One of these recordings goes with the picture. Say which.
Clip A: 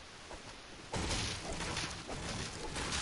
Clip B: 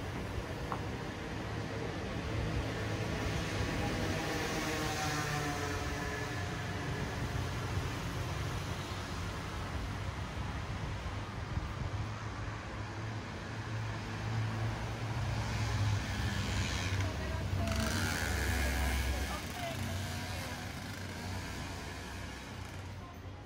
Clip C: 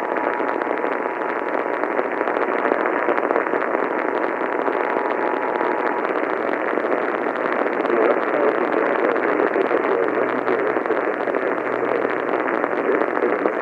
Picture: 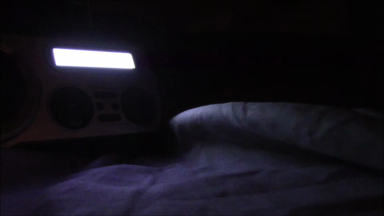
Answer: C